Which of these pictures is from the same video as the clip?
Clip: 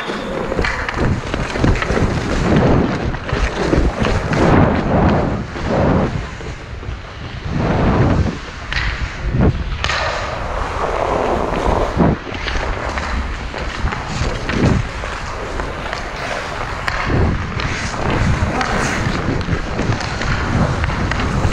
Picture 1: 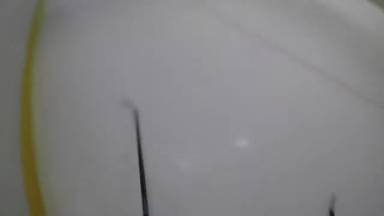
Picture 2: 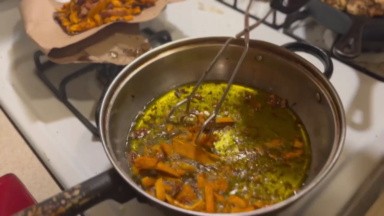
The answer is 1